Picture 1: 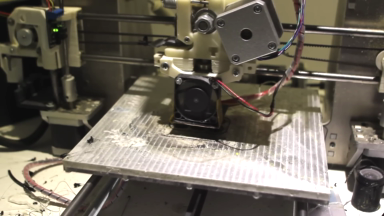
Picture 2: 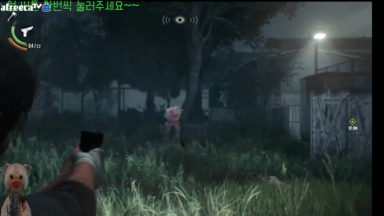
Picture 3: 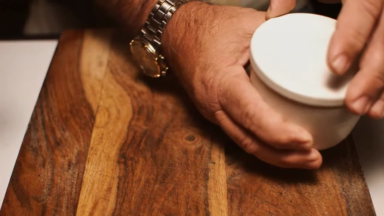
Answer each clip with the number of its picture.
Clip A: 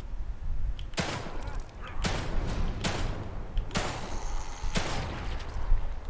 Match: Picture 2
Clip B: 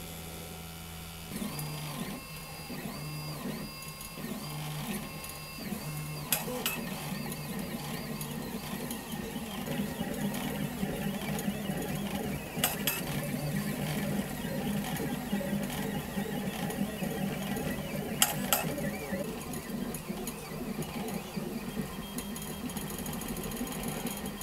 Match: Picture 1